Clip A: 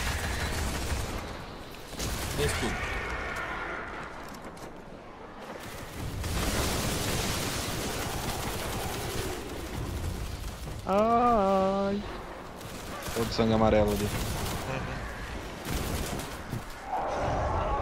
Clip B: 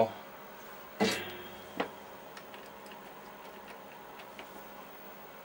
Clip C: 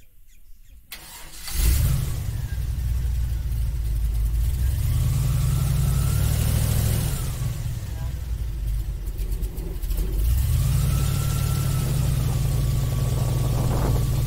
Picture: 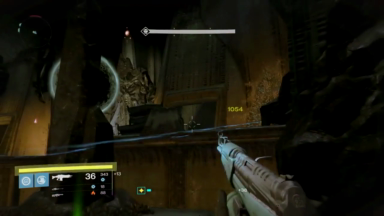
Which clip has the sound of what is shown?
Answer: A